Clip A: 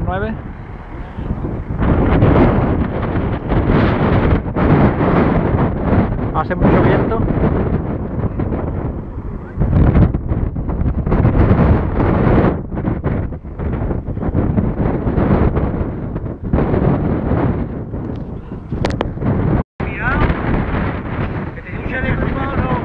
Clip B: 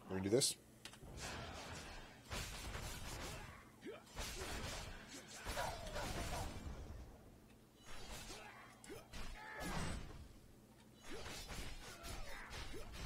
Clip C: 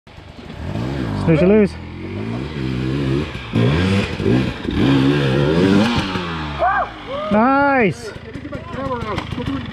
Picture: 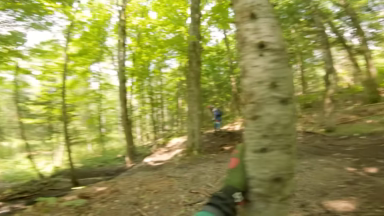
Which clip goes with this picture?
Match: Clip C